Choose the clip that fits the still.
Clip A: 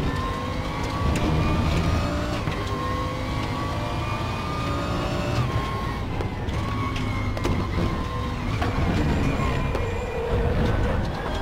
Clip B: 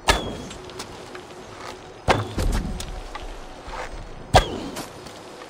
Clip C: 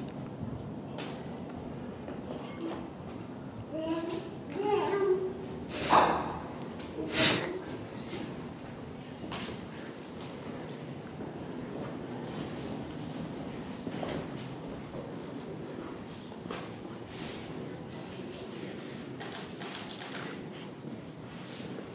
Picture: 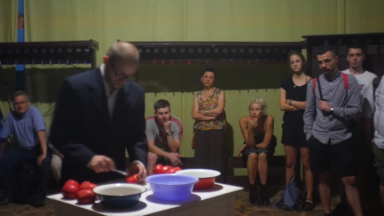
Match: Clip C